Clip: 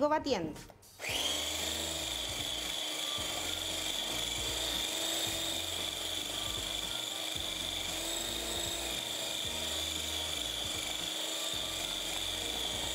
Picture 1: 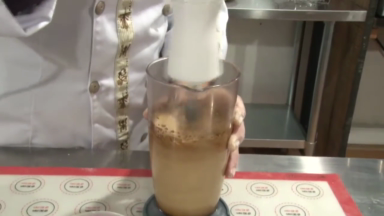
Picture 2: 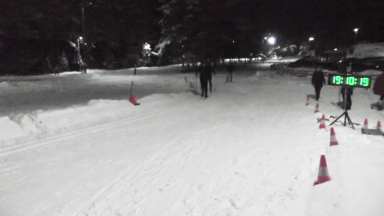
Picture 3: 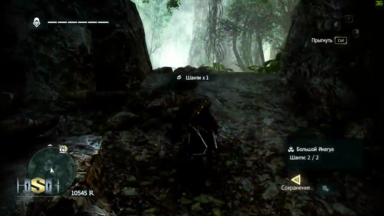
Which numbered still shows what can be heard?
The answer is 1